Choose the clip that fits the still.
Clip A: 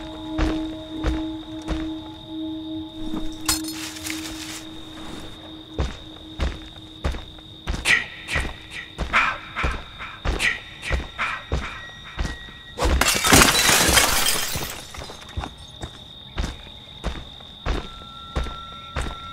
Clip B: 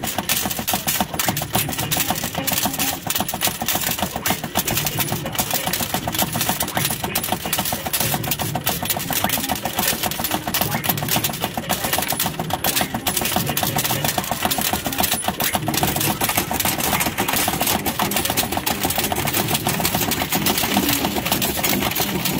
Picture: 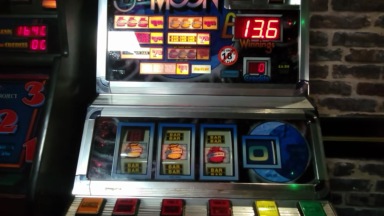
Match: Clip B